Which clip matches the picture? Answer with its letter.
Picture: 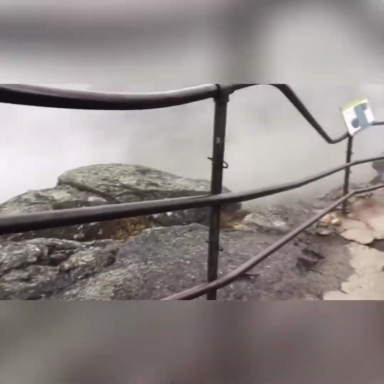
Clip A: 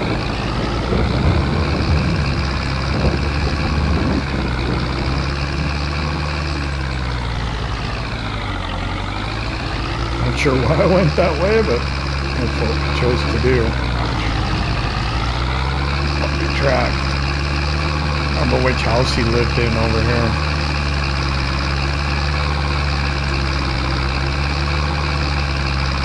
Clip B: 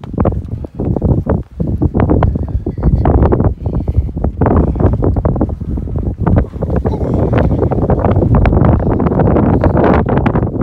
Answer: B